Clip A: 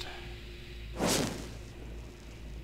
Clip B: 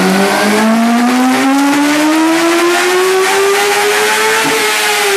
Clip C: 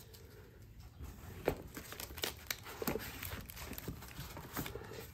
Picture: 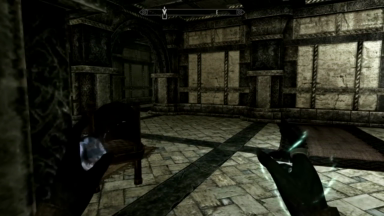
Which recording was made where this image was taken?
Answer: A